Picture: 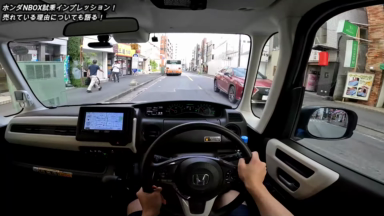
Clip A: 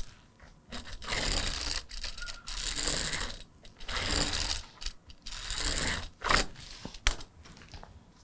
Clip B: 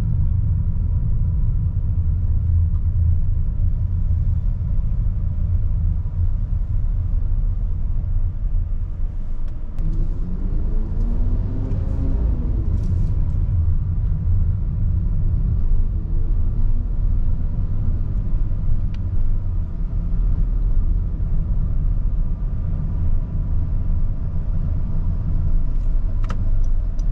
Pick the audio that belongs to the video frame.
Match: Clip B